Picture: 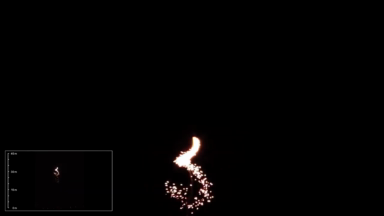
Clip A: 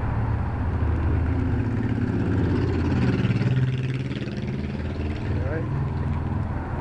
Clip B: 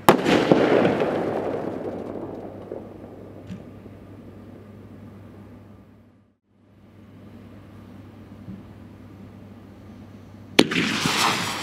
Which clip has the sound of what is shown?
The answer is B